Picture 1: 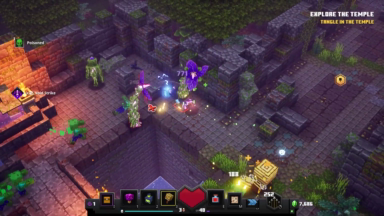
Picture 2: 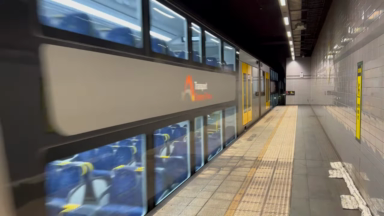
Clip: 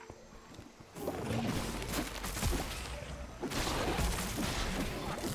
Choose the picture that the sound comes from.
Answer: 1